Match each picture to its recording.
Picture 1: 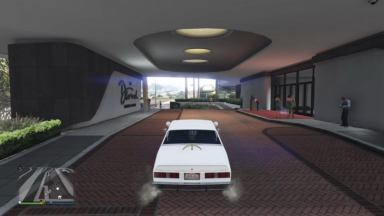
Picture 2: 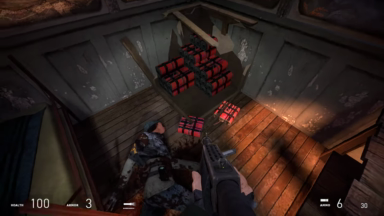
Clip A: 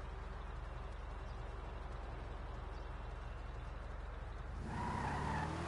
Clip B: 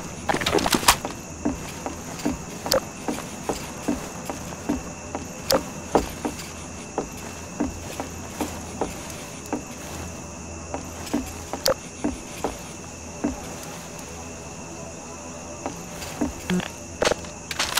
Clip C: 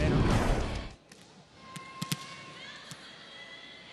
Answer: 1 A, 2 B